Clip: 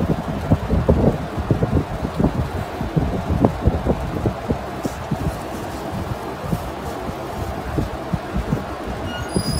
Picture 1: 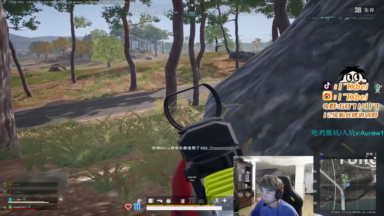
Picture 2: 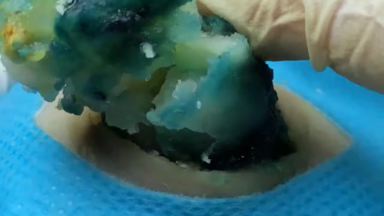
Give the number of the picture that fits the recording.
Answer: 2